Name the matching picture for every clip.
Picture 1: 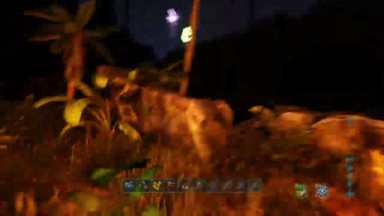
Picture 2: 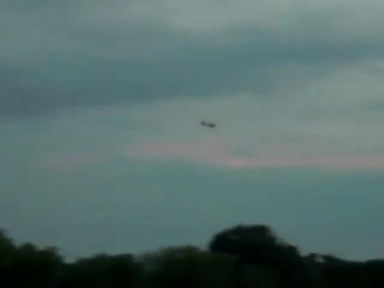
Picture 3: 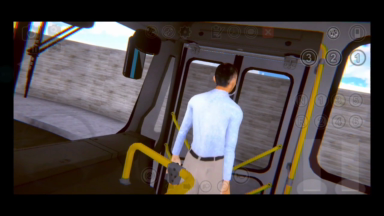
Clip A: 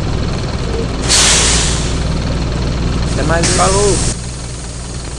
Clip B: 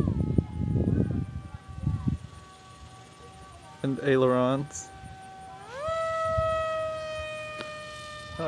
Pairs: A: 3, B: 2